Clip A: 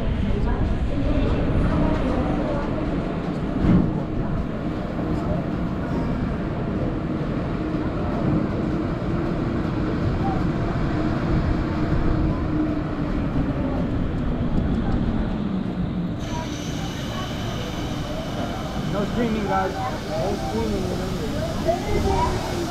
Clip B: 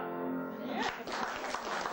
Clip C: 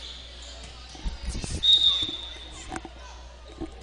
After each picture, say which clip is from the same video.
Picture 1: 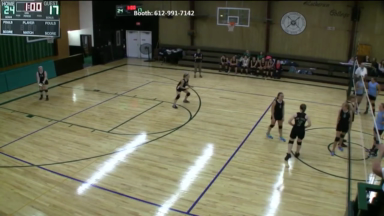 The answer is C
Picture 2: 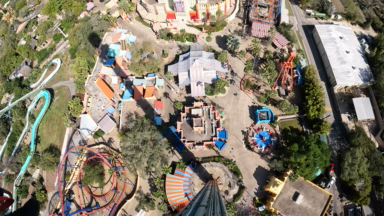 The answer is A